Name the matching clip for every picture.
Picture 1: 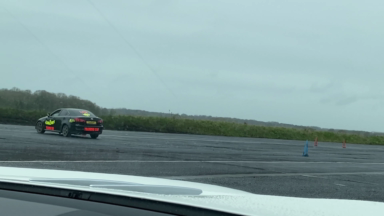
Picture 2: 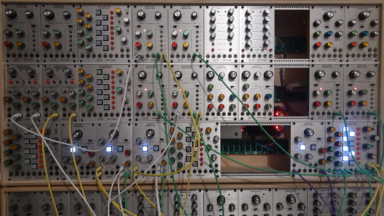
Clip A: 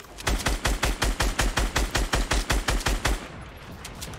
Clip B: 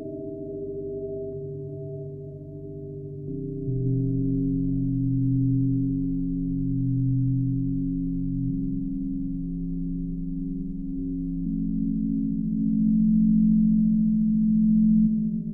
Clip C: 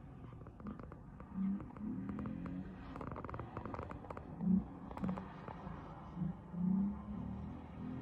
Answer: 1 C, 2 B